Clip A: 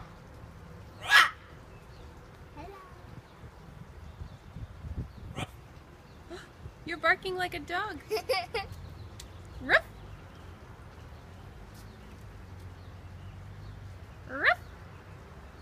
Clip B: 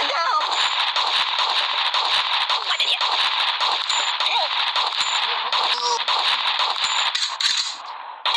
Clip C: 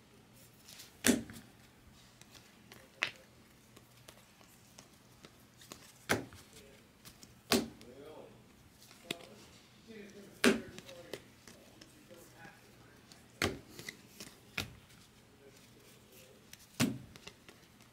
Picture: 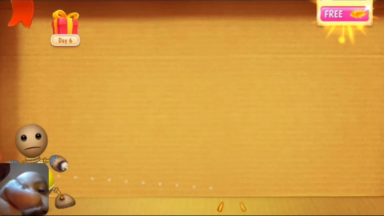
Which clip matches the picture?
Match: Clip B